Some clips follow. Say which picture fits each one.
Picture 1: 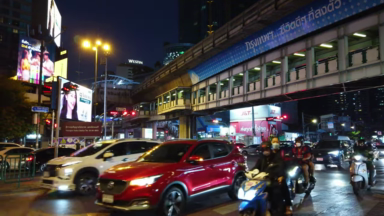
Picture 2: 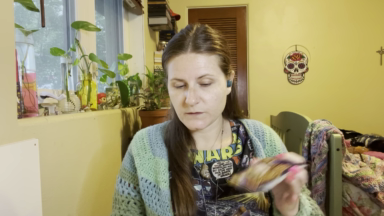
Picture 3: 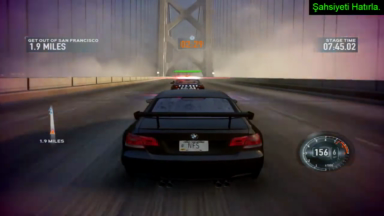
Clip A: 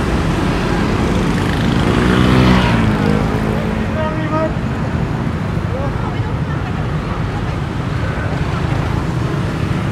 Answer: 1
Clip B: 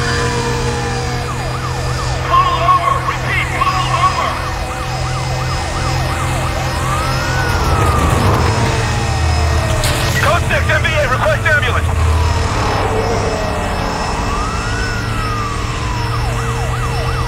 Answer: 3